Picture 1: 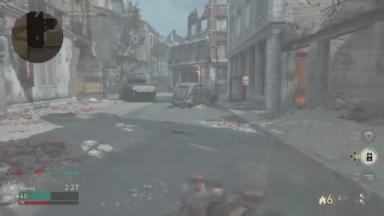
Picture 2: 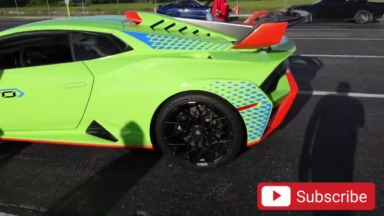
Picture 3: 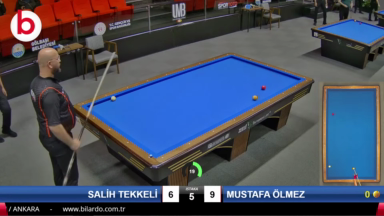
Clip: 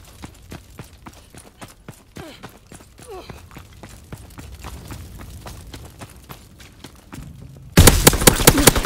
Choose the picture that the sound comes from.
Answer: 1